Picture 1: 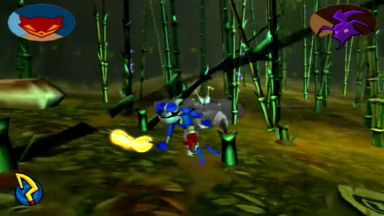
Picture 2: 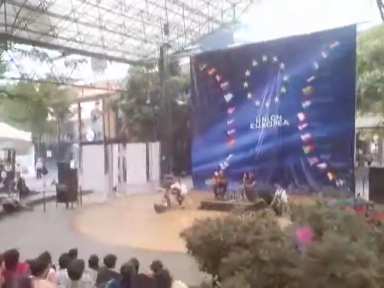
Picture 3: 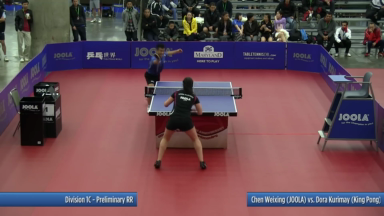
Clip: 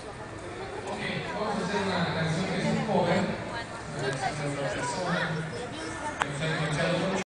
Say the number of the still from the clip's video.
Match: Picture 2